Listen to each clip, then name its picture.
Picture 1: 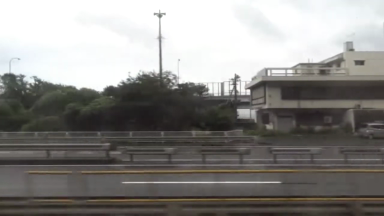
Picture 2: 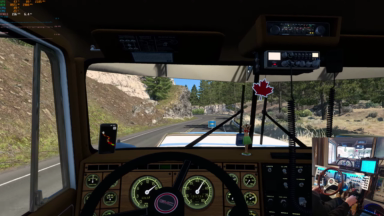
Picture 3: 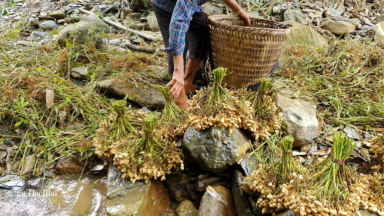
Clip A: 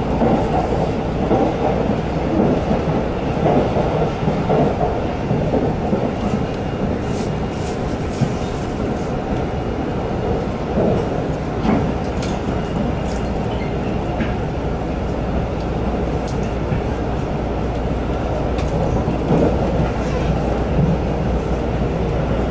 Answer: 1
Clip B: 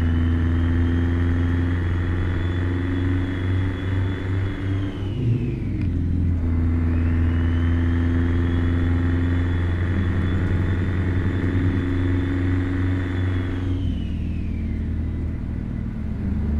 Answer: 2